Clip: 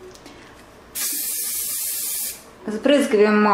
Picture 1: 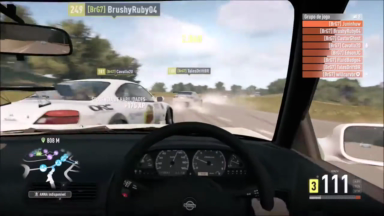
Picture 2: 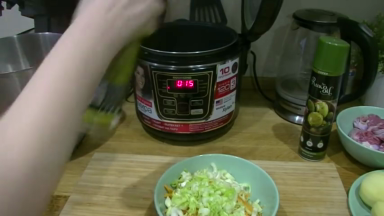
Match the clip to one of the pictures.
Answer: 2